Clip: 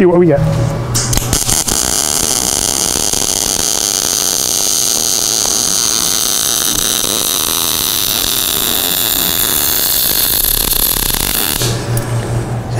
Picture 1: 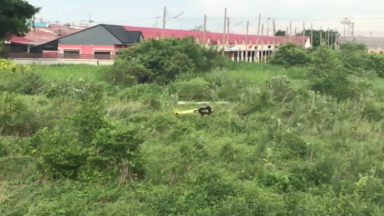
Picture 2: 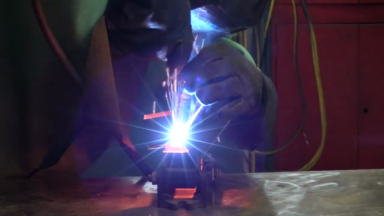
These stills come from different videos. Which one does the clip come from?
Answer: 2